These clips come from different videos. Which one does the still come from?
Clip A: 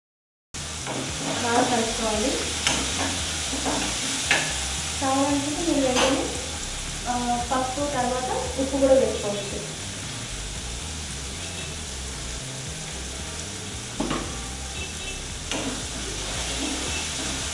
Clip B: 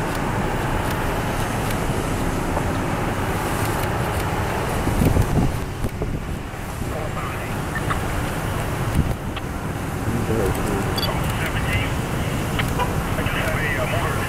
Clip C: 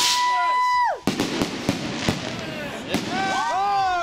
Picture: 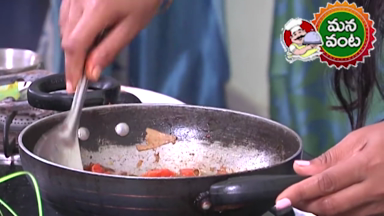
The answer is A